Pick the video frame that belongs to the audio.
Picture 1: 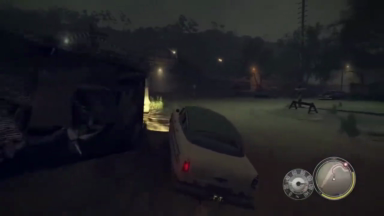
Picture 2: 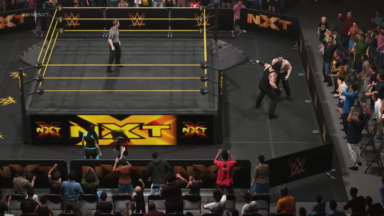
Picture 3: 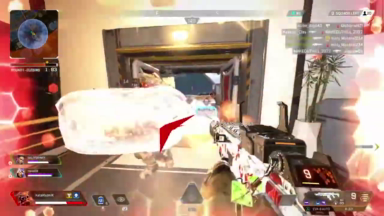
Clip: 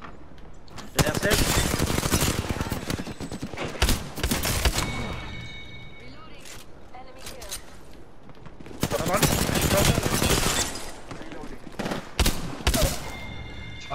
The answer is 3